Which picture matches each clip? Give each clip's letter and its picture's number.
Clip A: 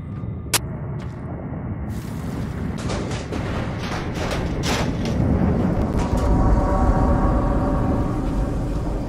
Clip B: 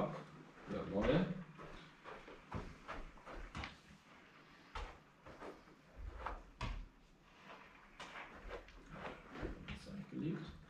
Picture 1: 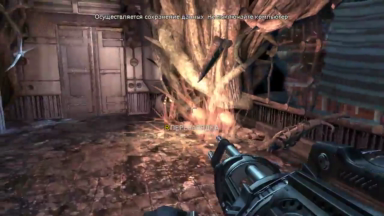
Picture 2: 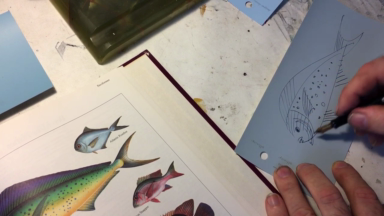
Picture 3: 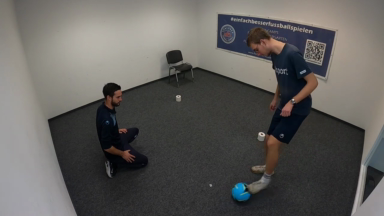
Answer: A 1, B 3